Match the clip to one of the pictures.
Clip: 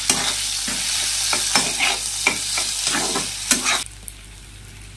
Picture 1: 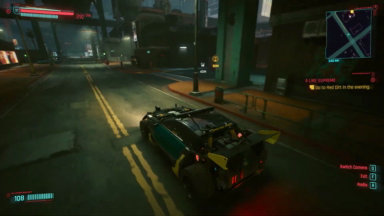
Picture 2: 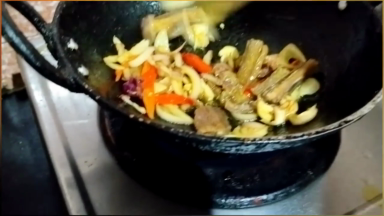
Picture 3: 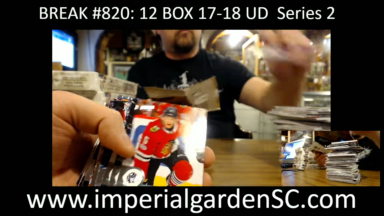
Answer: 2